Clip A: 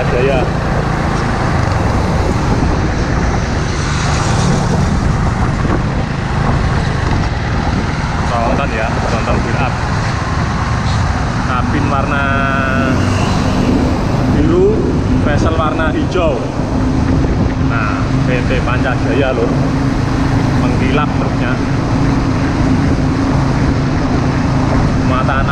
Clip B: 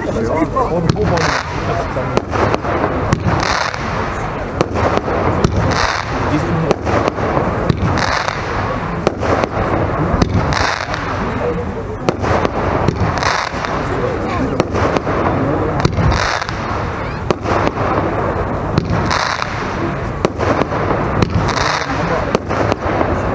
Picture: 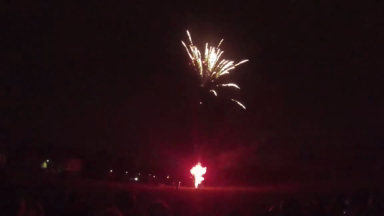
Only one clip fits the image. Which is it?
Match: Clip B